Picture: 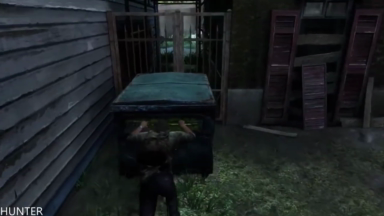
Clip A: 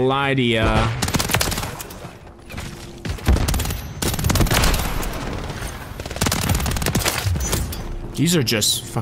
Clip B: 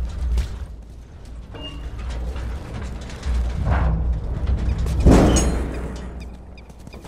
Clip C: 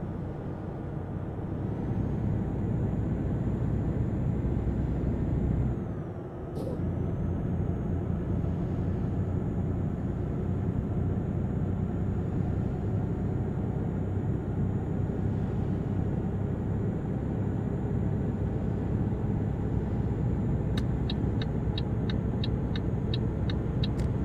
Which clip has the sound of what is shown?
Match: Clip B